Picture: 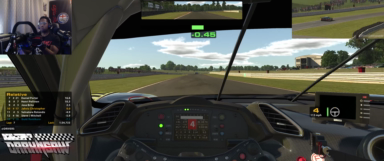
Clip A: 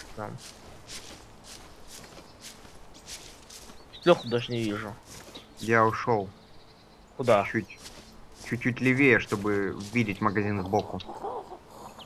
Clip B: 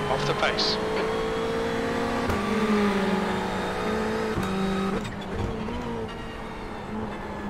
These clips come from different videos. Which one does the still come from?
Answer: B